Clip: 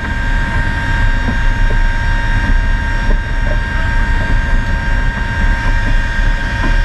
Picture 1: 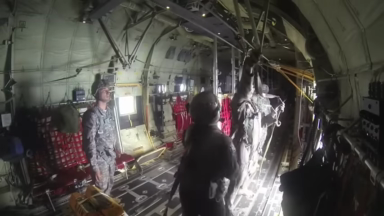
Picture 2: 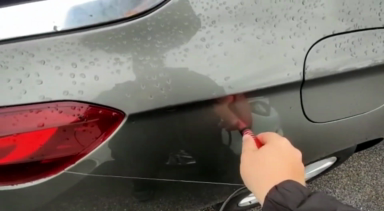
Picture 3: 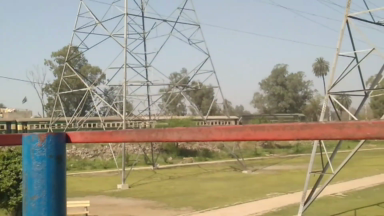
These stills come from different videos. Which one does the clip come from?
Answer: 1